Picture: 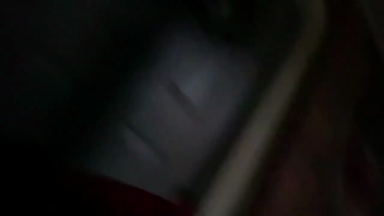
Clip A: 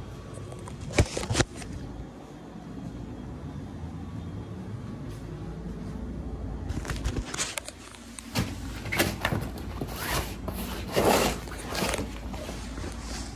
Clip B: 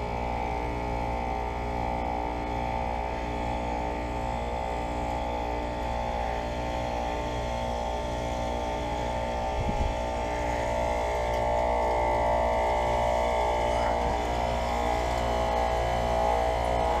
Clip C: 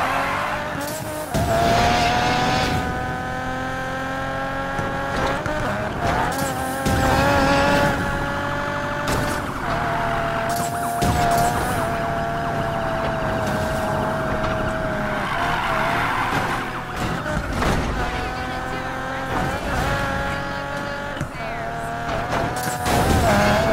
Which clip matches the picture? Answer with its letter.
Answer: A